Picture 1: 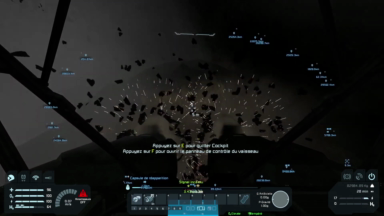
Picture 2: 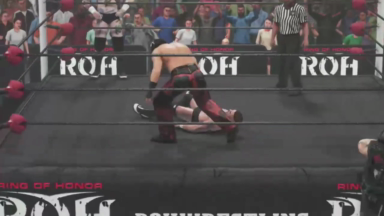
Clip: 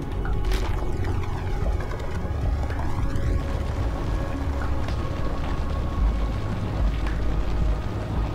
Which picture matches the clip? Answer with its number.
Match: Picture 1